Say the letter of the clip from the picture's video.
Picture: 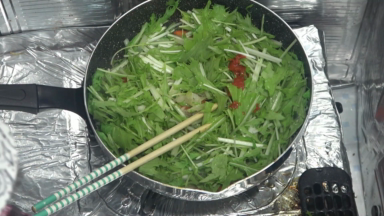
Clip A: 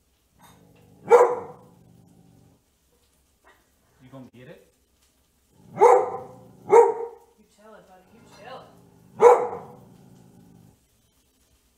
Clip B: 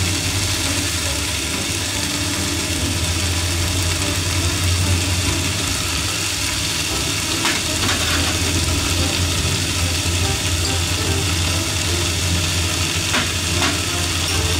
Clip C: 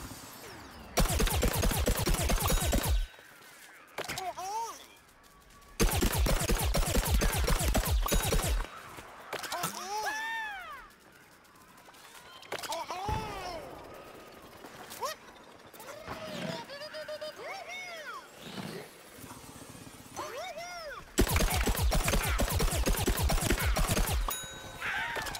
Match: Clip B